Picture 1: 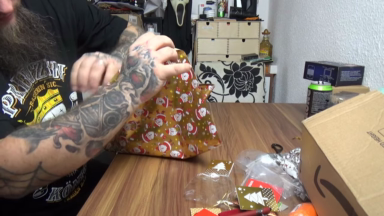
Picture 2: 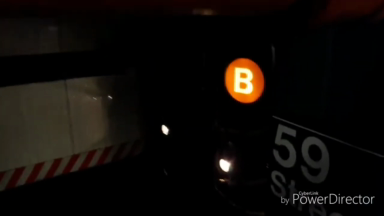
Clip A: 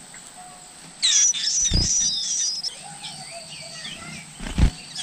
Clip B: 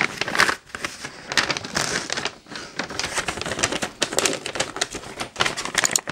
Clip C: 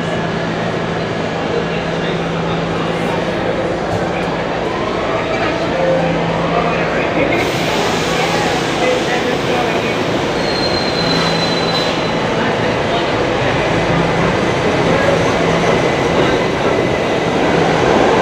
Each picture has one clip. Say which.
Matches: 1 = B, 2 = C